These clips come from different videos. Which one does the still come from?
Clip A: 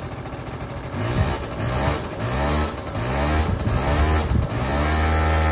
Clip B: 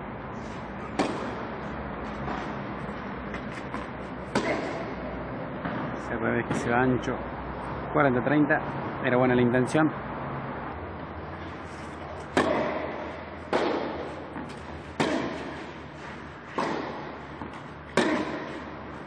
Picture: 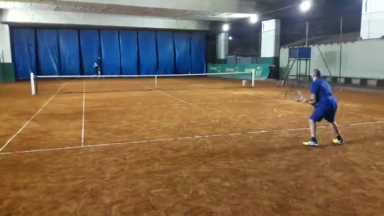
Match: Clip B